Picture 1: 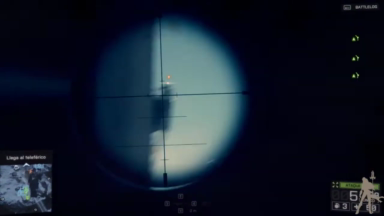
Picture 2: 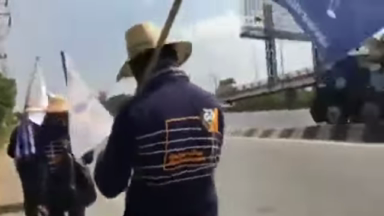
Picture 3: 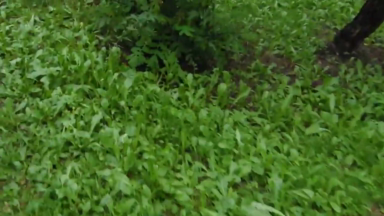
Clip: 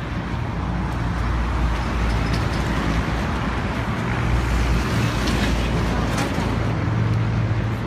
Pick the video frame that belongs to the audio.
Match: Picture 2